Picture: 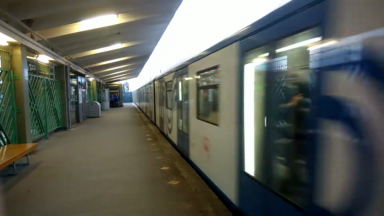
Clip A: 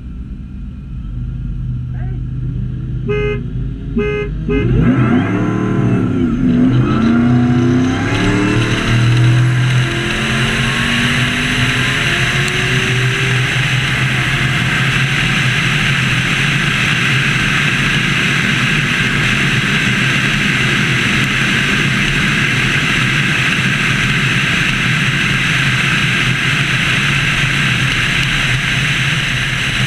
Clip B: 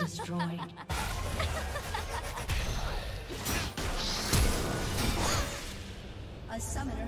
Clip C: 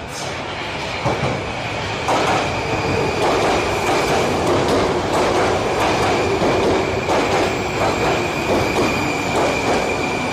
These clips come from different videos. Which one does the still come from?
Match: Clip C